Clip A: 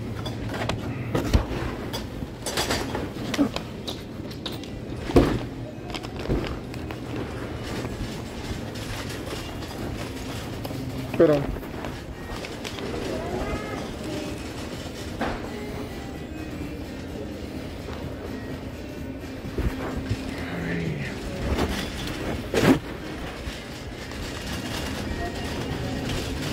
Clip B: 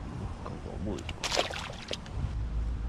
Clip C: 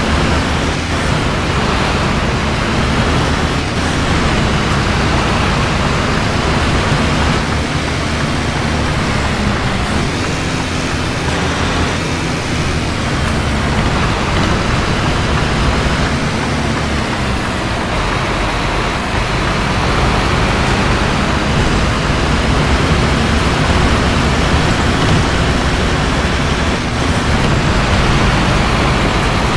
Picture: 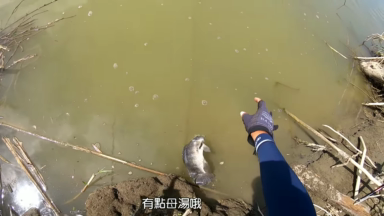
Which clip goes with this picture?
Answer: B